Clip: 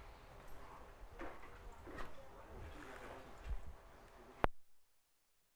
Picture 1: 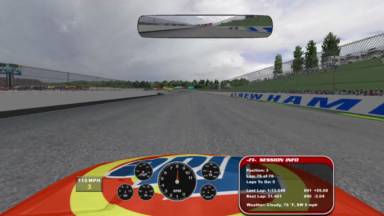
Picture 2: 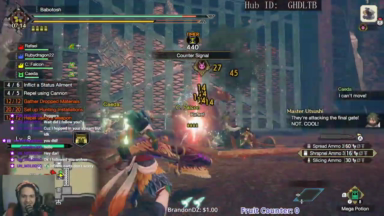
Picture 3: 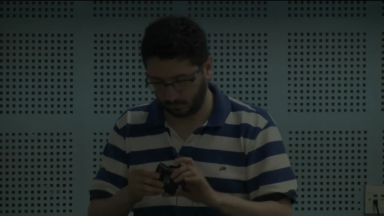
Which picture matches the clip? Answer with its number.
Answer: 3